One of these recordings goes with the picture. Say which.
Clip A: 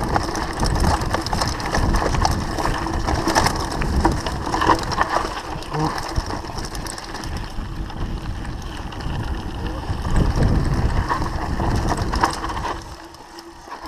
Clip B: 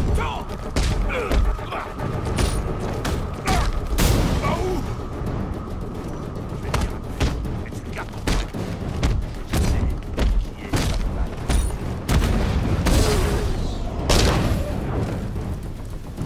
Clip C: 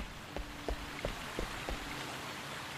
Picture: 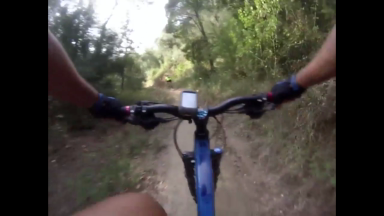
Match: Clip A